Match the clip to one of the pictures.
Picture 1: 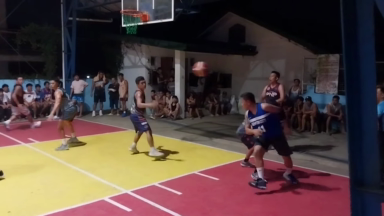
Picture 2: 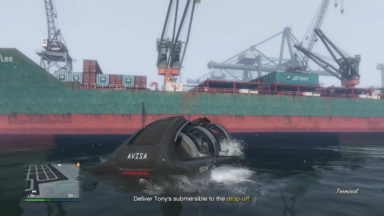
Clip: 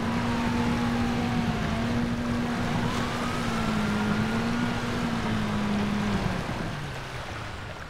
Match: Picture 2